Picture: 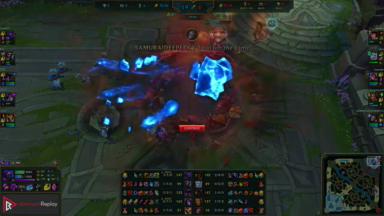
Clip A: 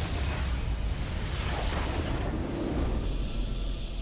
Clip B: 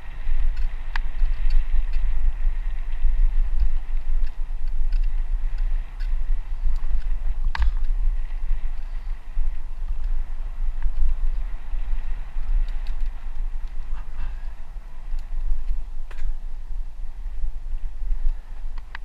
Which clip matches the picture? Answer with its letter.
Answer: A